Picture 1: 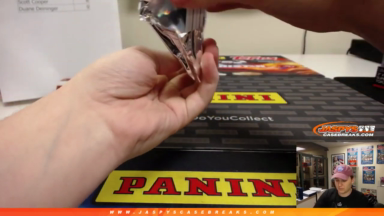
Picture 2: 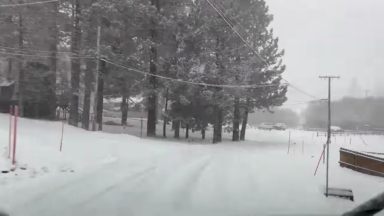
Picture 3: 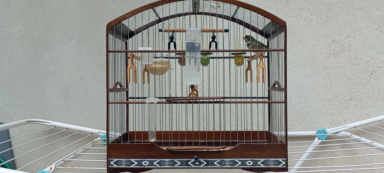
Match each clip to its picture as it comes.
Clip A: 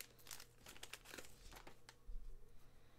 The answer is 1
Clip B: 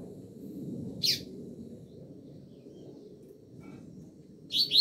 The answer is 3